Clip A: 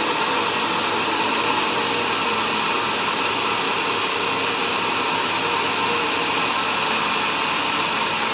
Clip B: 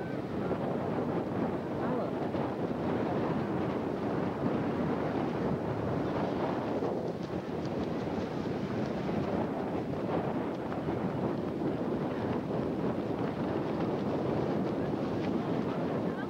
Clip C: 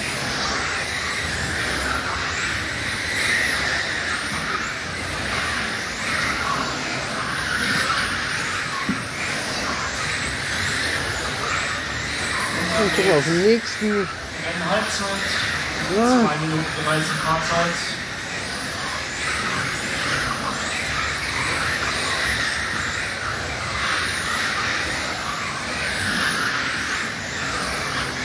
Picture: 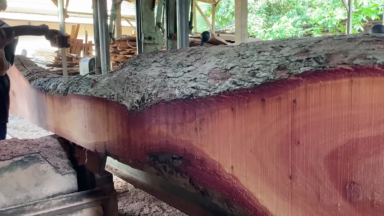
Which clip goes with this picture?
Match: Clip A